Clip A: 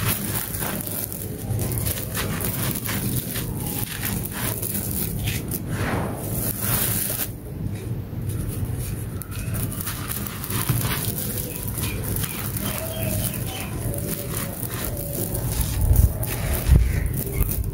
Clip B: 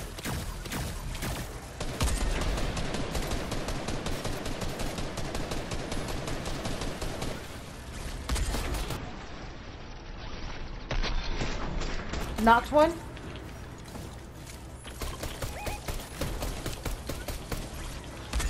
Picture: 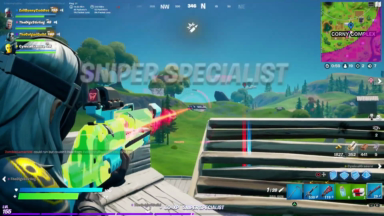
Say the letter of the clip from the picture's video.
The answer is B